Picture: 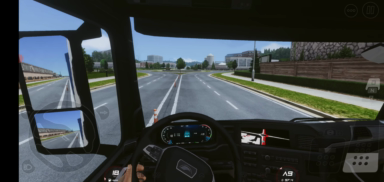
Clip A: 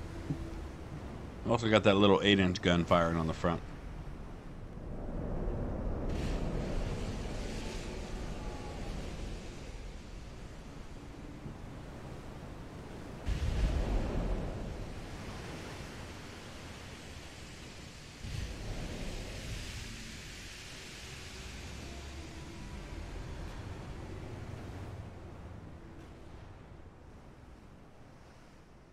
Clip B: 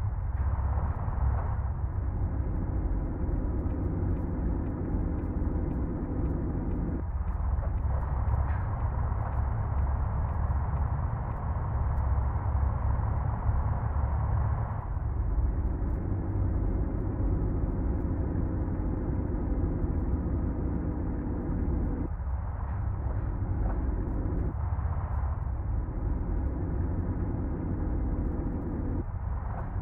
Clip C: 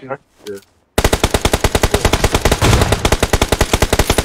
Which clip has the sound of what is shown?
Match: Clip B